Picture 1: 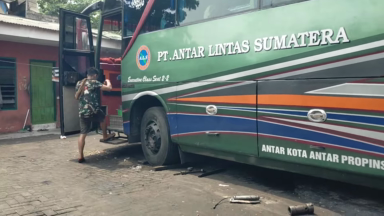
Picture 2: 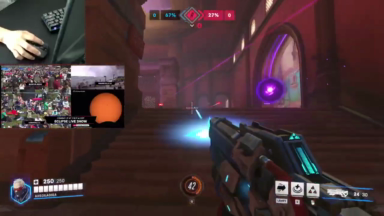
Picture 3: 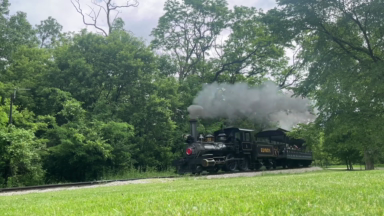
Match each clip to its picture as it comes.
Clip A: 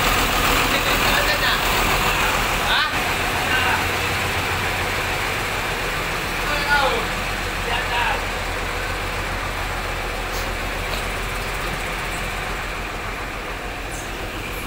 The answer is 1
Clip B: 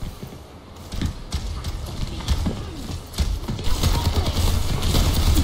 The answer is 2